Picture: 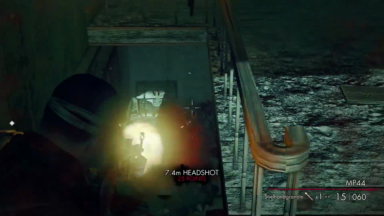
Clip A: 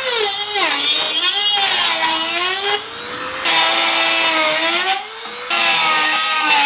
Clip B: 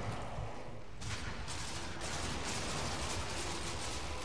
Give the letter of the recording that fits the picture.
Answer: B